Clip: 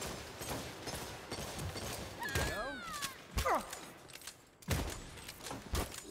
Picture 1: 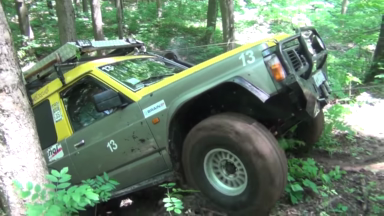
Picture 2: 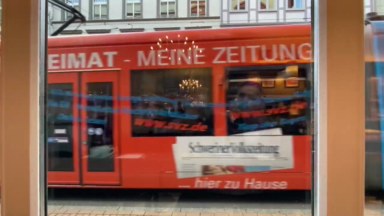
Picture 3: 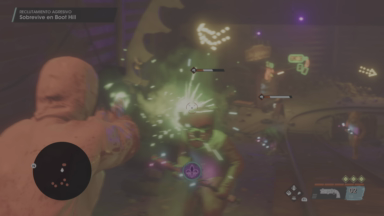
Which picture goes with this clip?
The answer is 3